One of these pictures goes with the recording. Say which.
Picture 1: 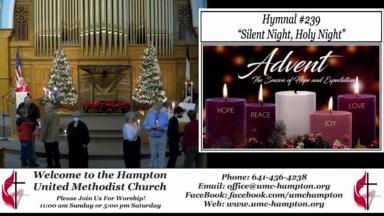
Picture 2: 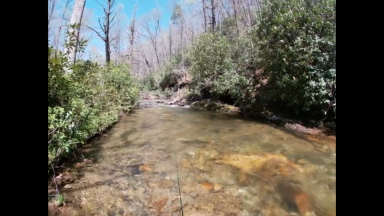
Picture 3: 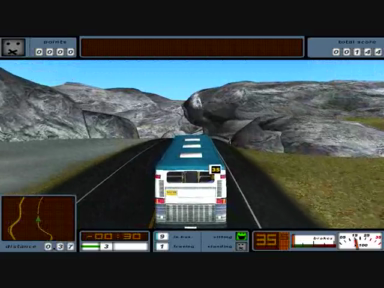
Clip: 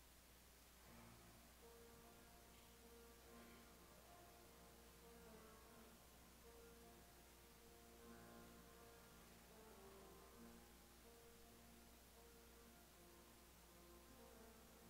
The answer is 1